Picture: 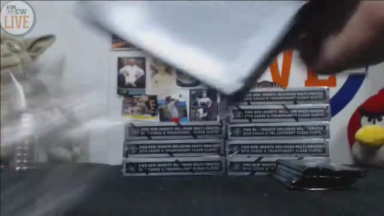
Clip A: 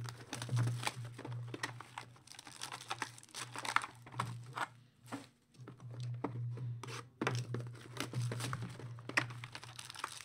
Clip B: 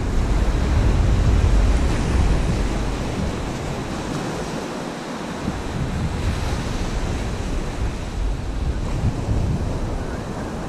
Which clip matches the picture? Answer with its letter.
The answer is A